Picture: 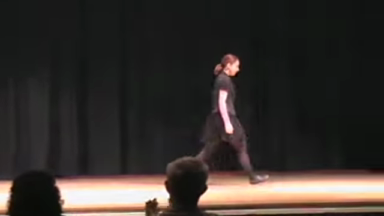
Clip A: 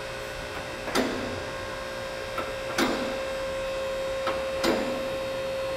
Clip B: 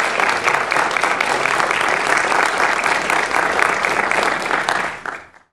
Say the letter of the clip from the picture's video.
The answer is B